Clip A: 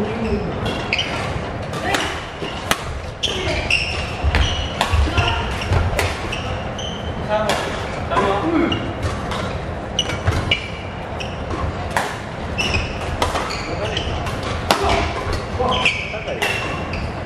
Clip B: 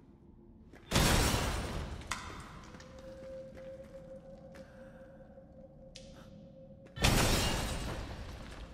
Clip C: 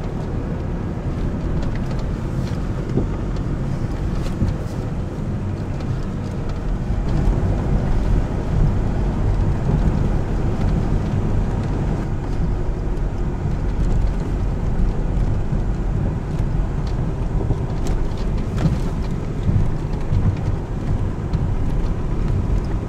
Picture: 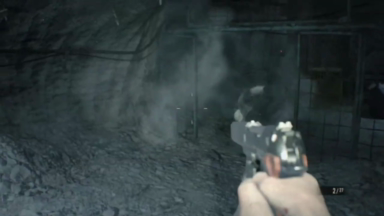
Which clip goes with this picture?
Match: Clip B